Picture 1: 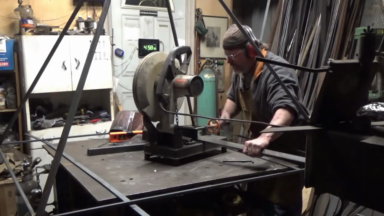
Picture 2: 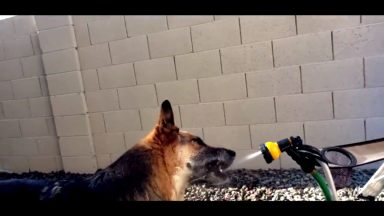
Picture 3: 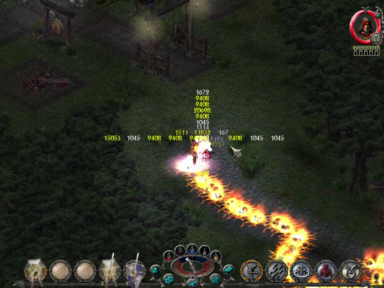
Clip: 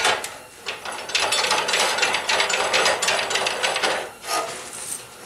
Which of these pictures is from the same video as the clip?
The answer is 1